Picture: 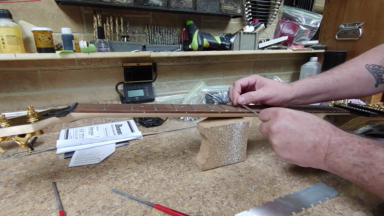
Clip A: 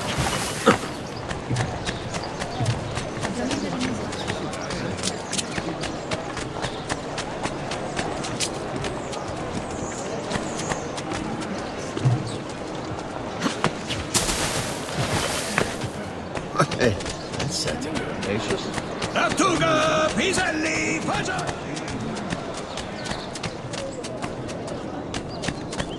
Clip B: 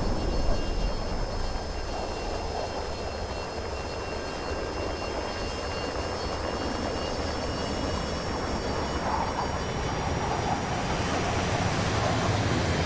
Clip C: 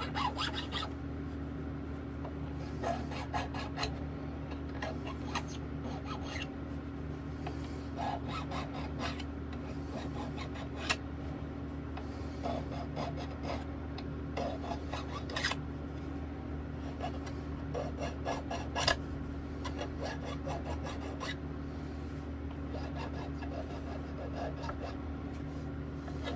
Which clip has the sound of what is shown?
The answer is C